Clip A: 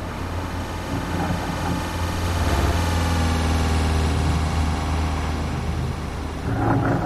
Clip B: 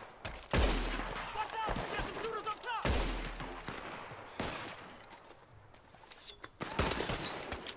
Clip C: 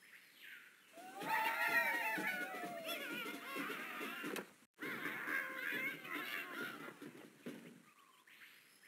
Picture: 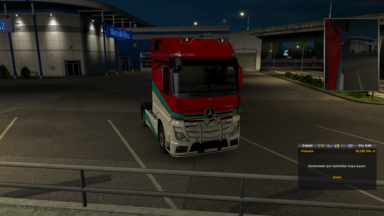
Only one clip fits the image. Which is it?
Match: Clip A